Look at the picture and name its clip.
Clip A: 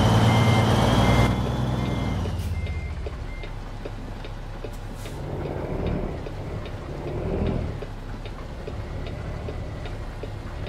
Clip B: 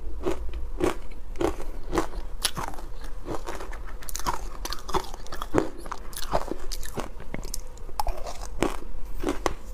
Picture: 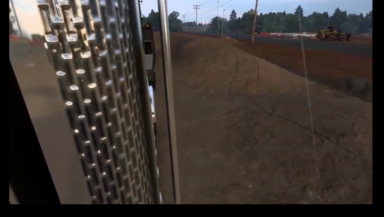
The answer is A